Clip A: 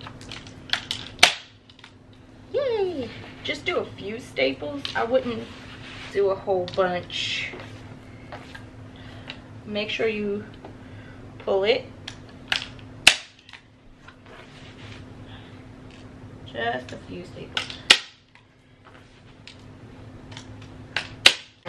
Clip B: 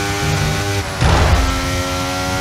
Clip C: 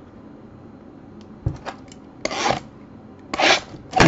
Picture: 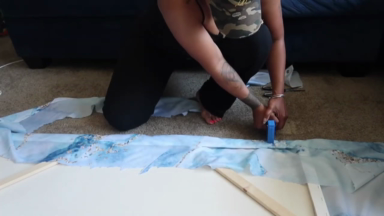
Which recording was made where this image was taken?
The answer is A